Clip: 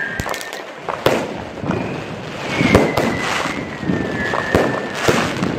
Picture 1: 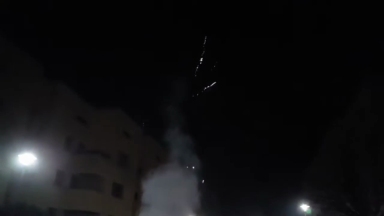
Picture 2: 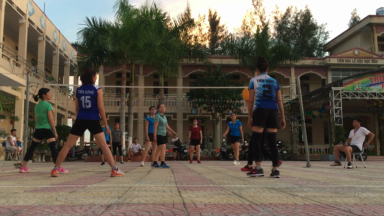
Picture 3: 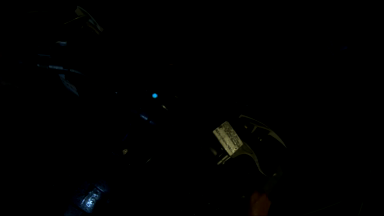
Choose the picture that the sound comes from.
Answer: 1